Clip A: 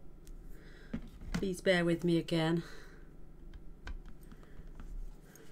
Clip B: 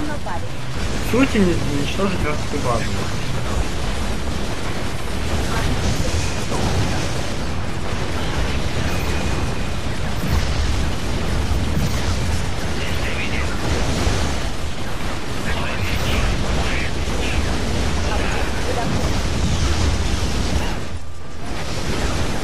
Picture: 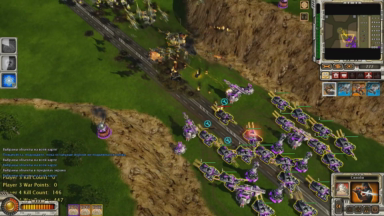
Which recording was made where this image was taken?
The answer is B